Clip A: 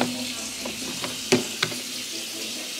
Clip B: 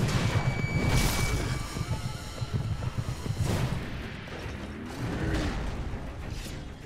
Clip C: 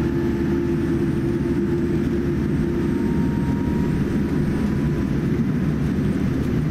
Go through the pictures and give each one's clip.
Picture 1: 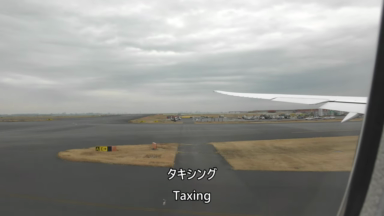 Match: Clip C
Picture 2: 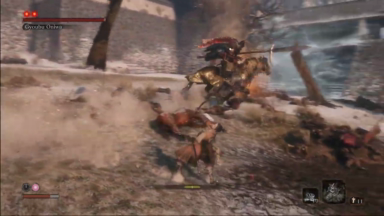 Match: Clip B